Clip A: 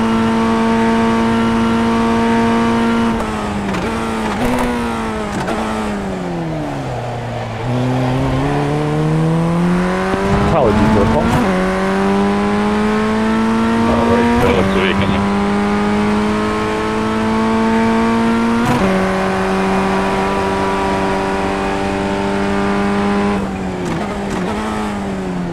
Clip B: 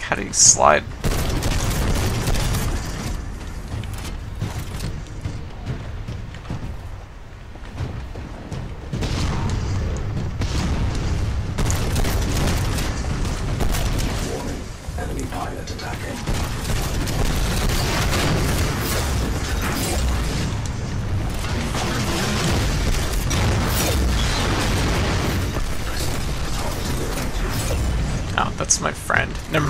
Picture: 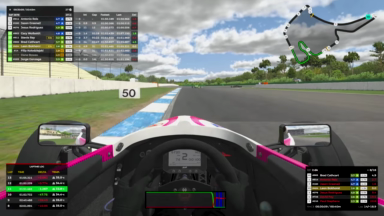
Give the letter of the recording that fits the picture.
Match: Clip A